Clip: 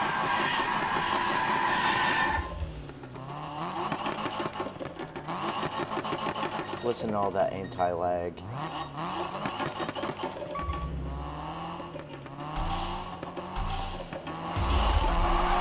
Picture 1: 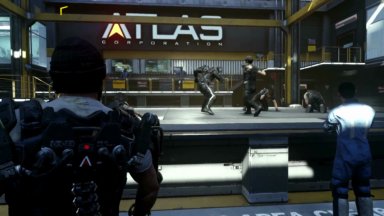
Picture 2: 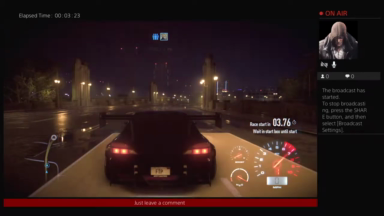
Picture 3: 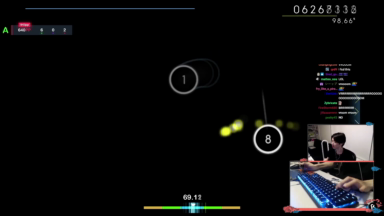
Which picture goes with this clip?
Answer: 2